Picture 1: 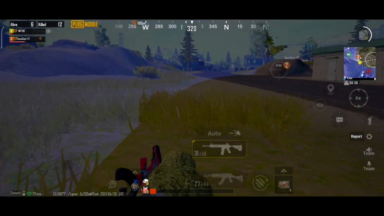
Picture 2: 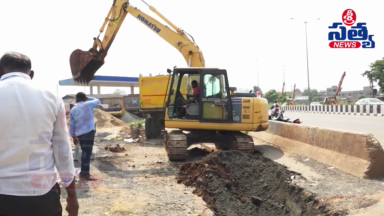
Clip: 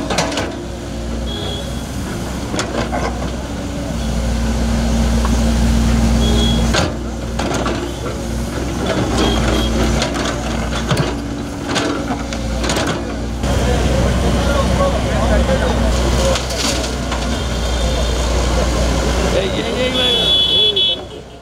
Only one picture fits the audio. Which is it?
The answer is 2